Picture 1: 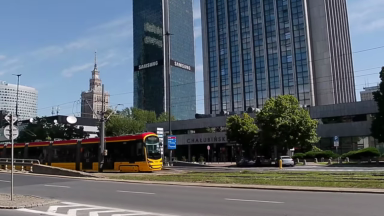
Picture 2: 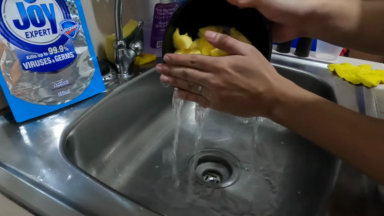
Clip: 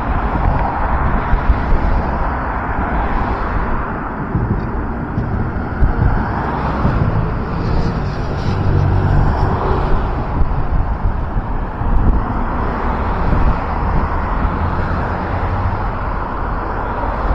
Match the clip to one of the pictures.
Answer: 1